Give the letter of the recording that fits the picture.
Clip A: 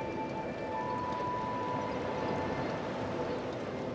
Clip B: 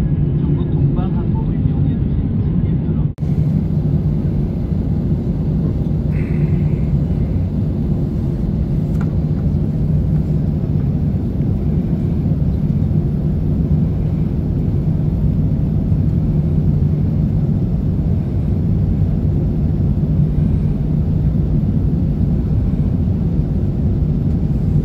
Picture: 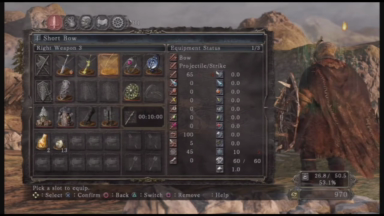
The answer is A